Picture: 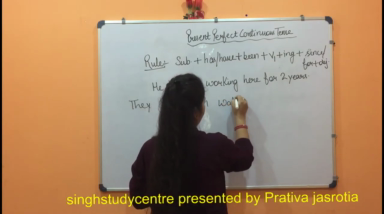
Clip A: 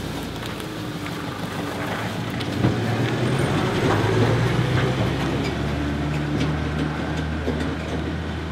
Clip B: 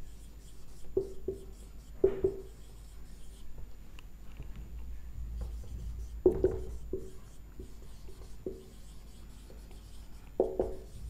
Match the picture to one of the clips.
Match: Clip B